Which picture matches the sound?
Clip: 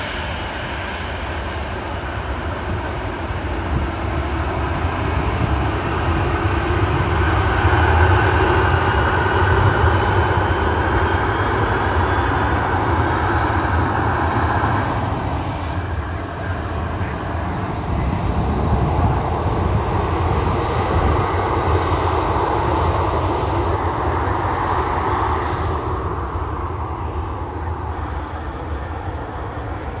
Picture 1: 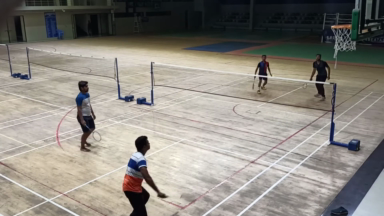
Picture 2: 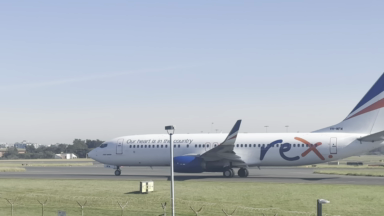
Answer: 2